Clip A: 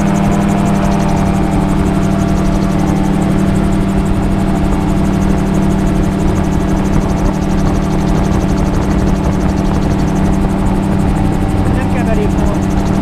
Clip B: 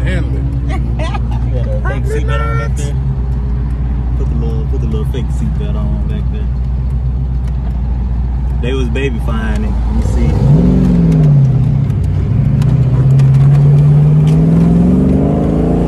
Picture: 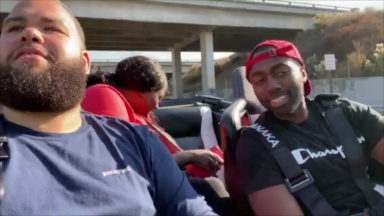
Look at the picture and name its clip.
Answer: B